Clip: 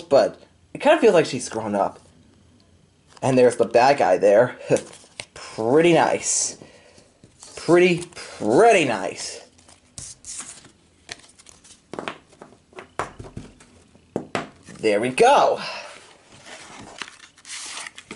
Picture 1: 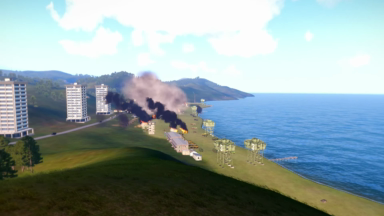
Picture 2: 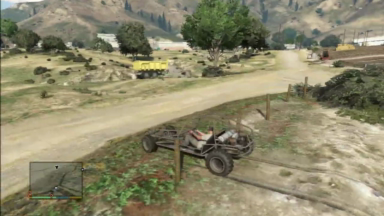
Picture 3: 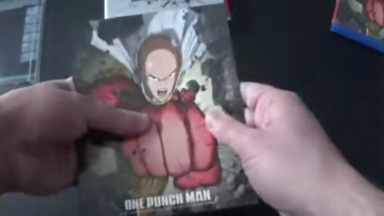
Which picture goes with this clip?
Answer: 3